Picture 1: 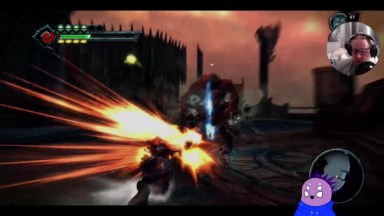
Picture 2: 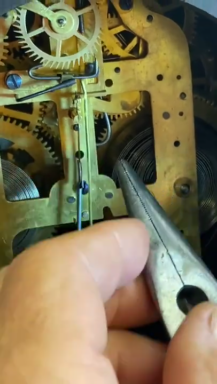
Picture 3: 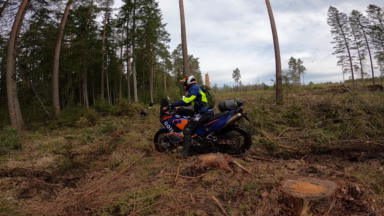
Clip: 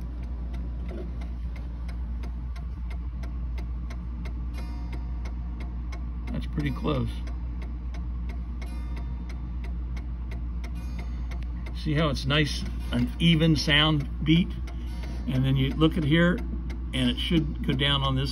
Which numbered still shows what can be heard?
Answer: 2